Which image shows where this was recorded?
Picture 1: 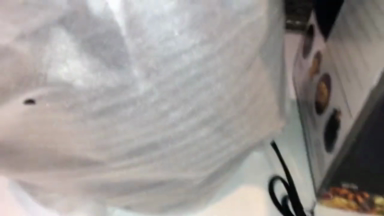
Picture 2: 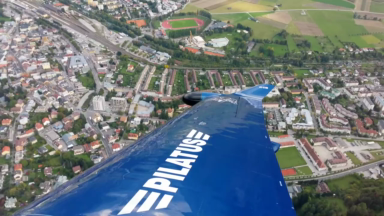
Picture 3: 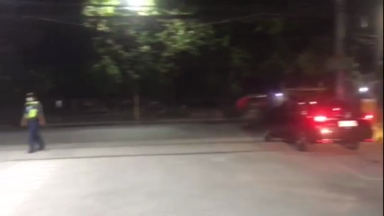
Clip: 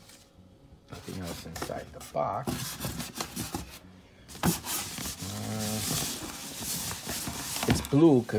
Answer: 1